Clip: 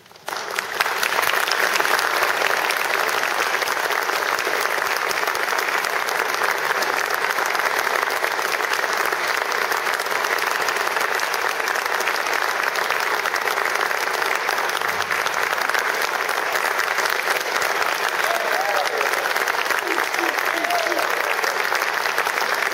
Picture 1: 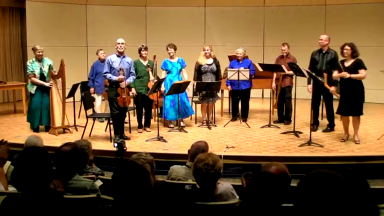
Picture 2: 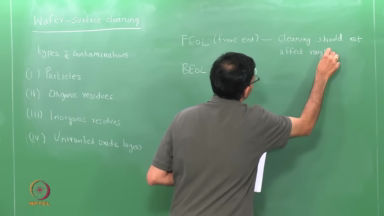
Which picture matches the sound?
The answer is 1